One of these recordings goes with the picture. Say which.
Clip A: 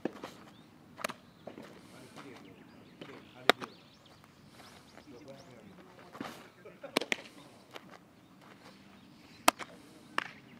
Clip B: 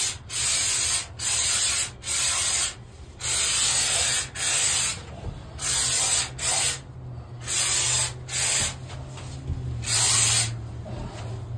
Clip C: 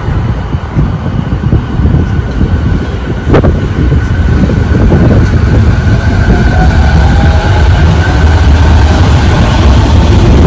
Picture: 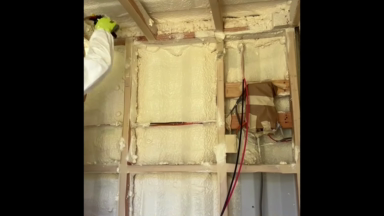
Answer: B